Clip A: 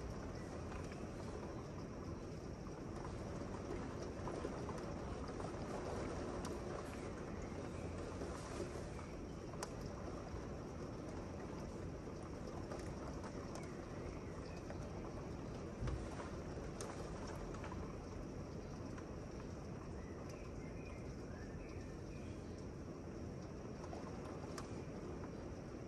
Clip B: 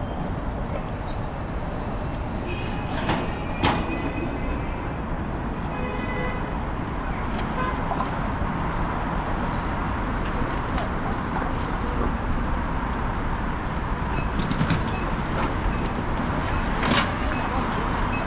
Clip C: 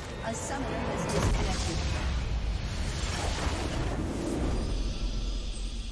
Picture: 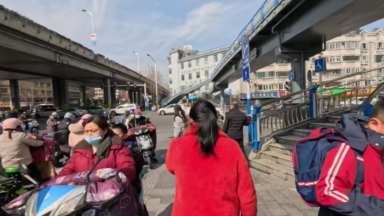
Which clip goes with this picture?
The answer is B